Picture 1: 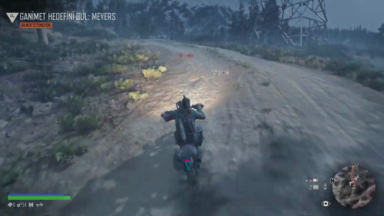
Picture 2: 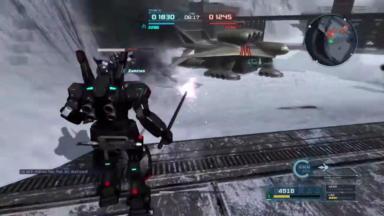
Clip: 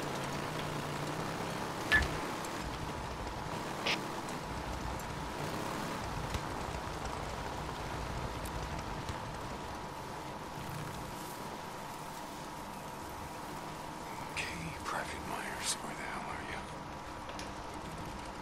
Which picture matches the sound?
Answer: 1